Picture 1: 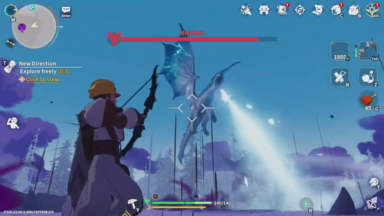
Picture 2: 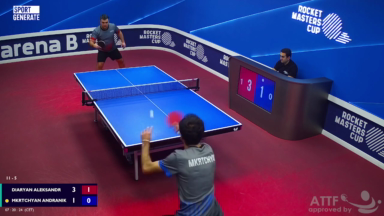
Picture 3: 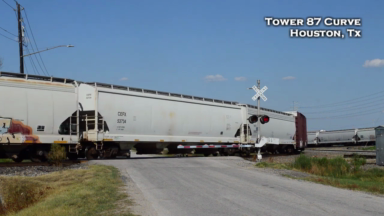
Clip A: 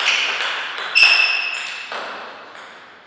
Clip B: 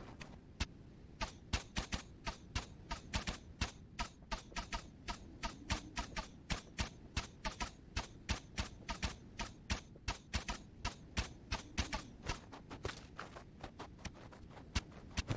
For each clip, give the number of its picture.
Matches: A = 2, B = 1